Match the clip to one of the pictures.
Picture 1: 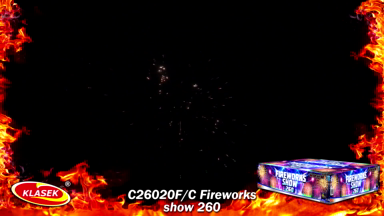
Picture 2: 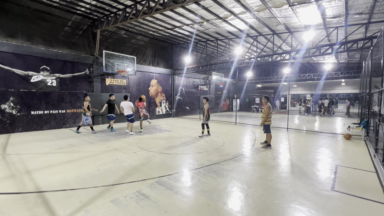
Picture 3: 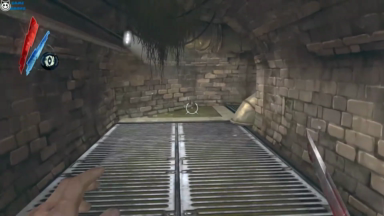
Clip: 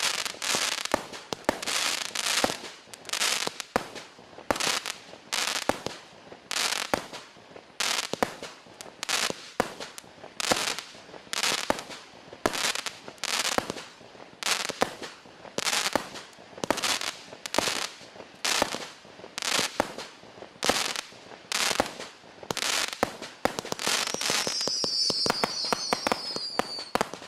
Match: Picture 1